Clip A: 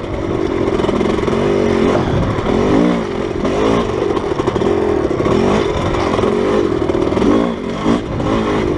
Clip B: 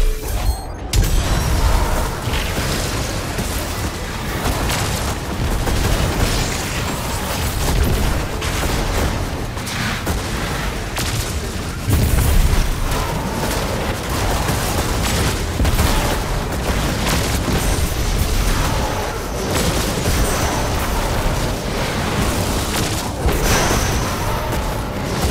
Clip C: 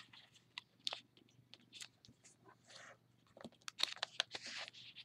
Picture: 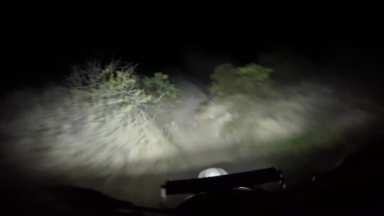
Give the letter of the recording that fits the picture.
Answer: A